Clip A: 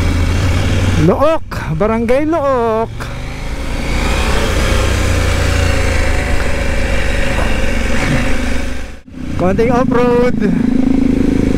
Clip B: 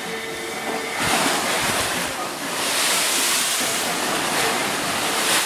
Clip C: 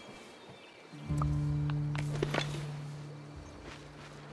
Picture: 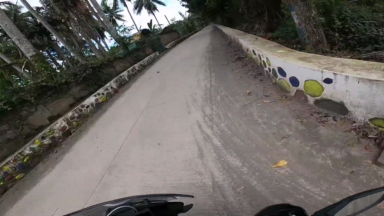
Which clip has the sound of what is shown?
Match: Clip A